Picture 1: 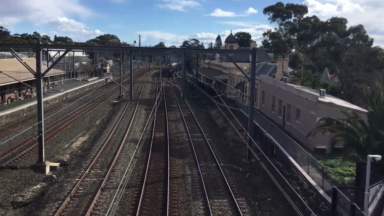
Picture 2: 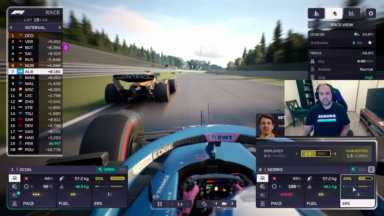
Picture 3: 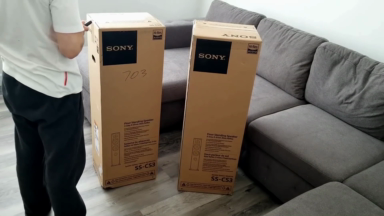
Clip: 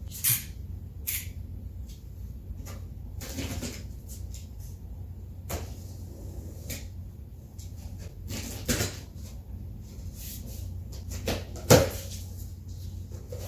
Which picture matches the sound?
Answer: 3